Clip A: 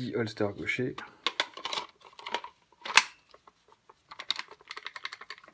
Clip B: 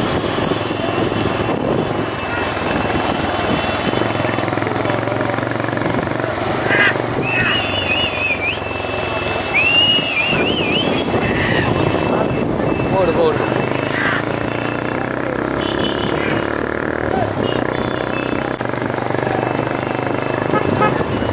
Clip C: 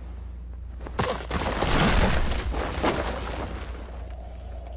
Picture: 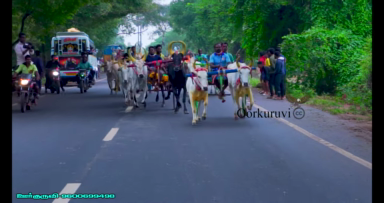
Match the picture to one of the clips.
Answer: B